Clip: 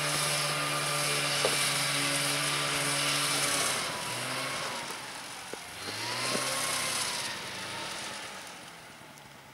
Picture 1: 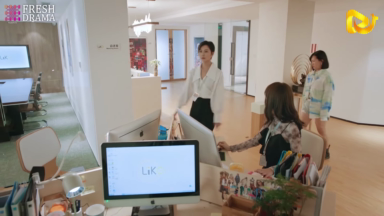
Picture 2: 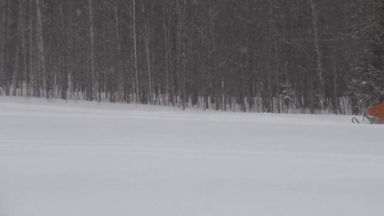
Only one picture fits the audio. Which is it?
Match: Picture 2